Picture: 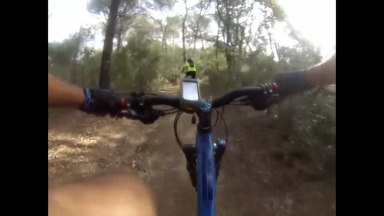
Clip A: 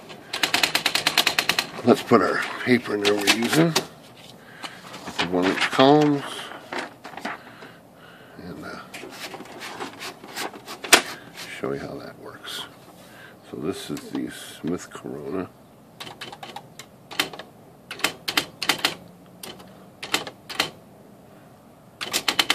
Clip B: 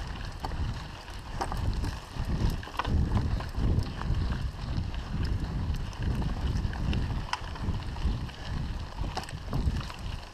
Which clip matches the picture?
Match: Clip B